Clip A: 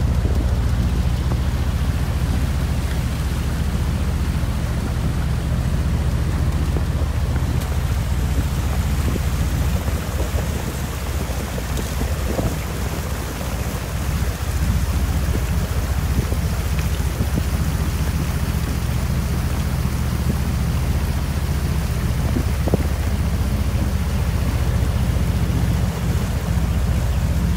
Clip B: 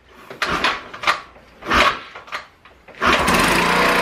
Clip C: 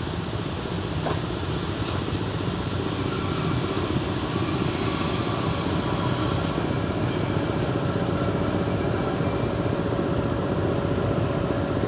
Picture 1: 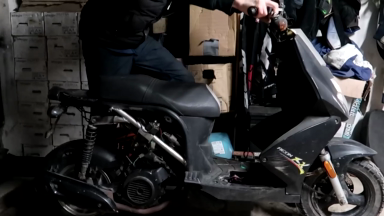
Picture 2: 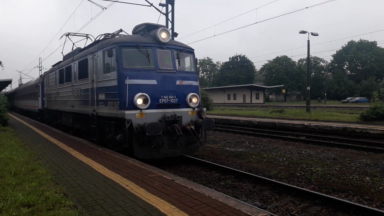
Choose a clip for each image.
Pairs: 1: B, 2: C